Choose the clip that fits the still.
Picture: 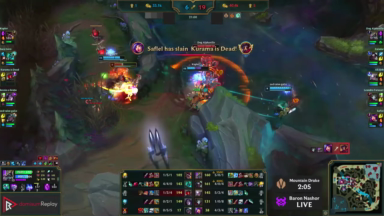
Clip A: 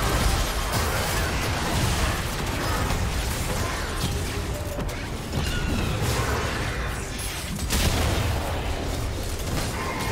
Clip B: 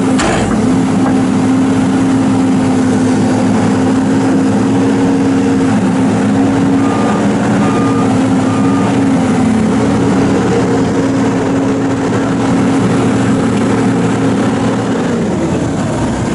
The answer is A